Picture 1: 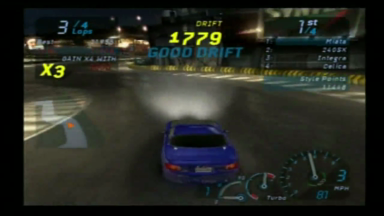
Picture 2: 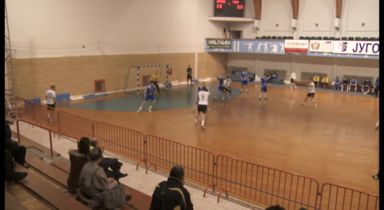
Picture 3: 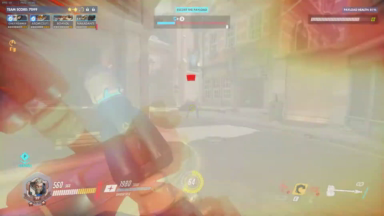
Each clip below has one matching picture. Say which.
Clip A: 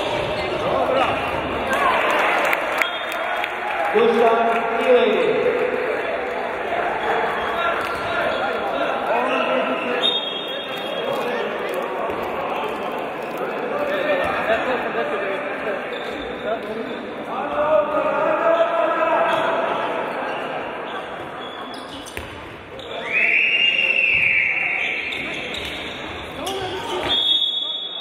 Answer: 2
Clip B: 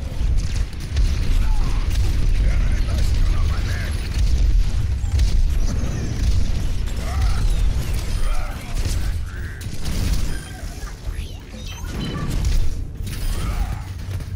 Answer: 3